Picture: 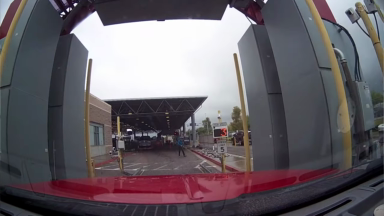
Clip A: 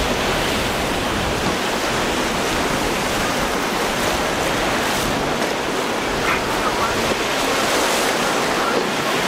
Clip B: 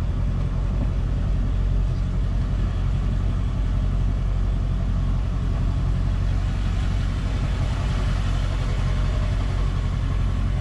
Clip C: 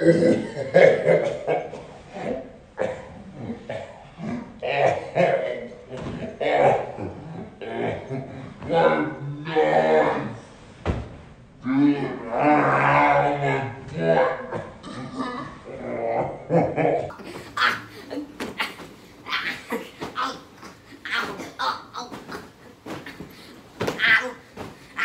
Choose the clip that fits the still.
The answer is B